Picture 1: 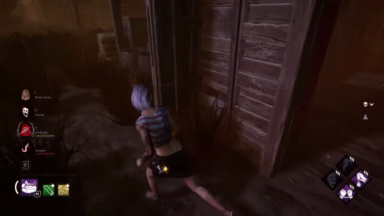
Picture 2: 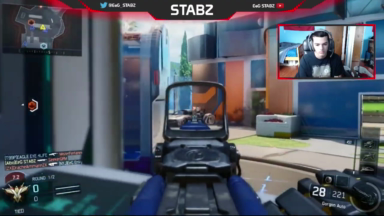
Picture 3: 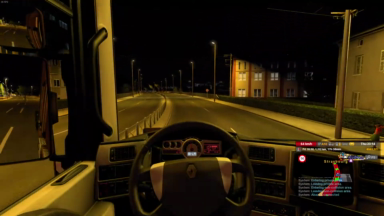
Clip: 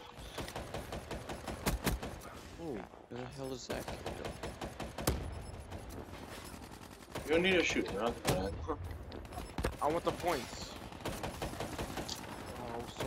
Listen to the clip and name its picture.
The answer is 2